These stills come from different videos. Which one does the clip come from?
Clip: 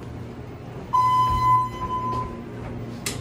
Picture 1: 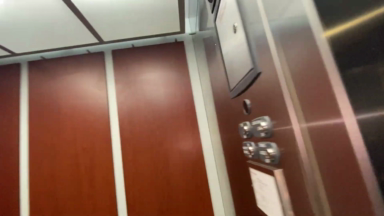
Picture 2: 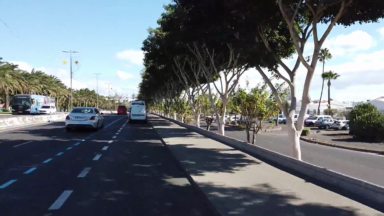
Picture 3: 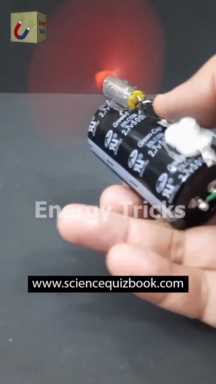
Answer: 1